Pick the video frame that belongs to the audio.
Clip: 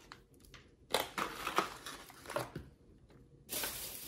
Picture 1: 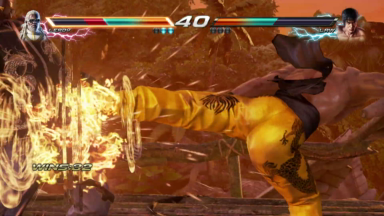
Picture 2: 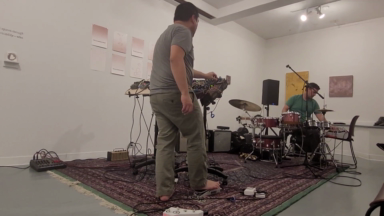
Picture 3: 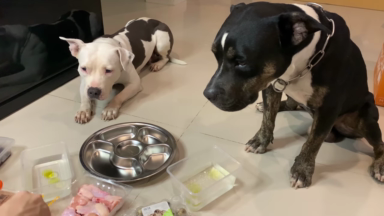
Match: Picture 3